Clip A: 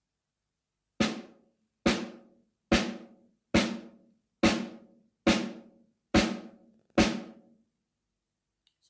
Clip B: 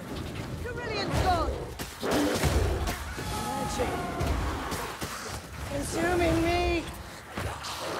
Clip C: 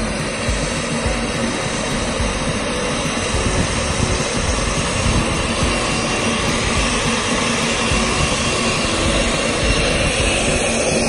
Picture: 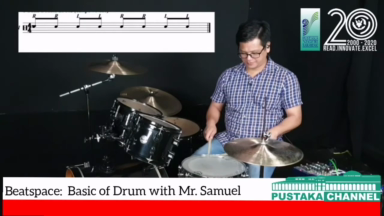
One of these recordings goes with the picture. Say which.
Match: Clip A